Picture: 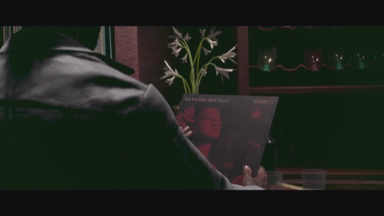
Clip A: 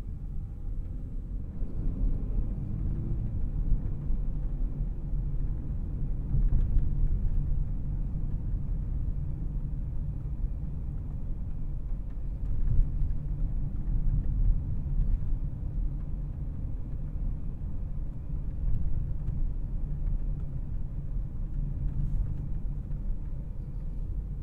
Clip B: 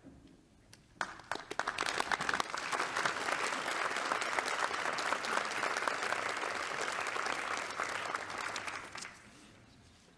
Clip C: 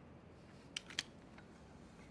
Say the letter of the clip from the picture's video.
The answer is C